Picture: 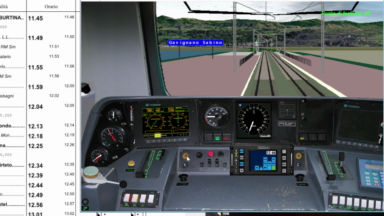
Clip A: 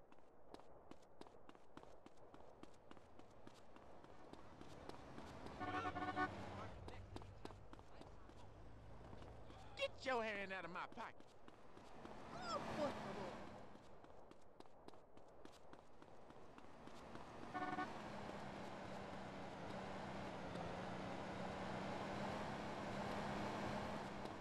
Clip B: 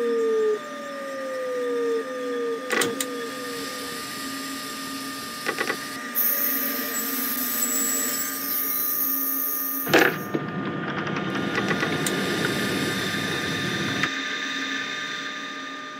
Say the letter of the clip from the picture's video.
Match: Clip B